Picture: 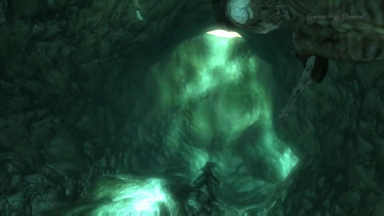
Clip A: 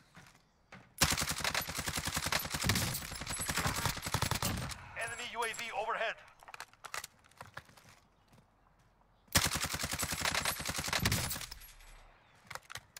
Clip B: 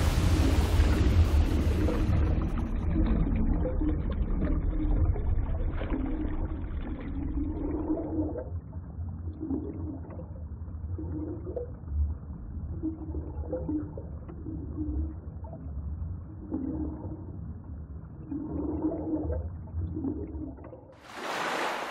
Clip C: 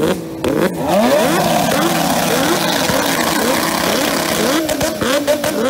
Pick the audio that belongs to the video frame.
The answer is B